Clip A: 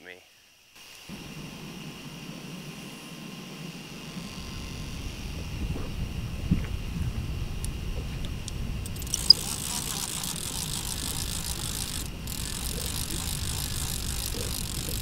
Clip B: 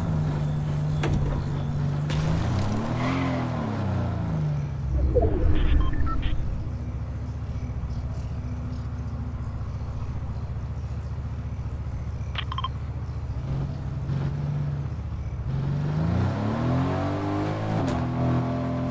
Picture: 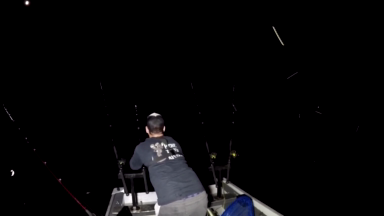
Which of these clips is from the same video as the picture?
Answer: A